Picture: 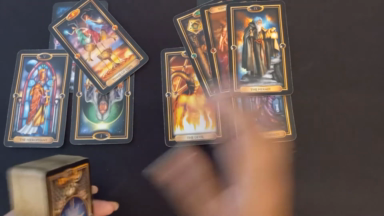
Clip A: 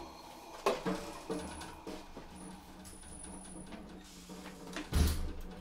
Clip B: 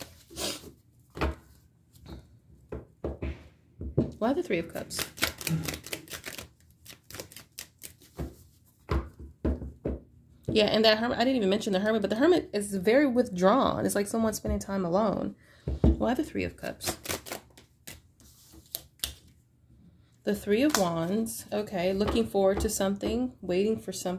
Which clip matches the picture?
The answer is B